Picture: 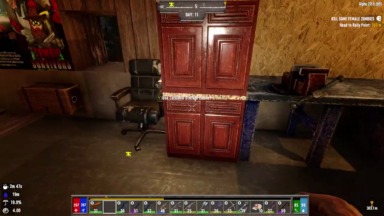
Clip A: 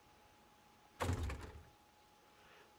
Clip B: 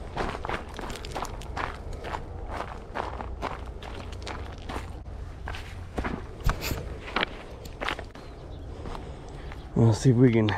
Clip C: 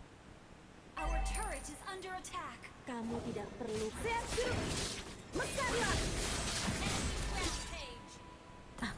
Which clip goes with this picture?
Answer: A